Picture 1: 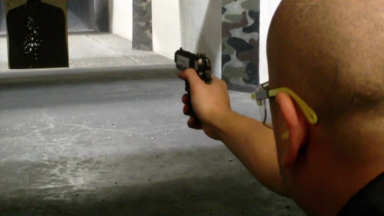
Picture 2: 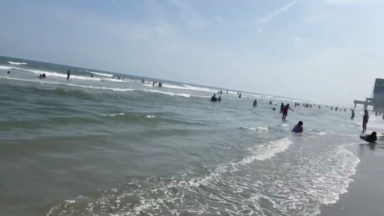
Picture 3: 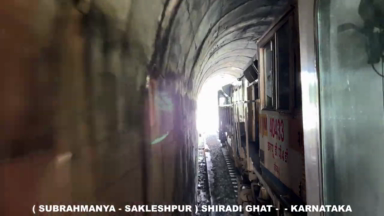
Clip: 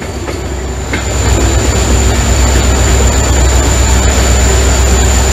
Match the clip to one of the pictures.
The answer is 3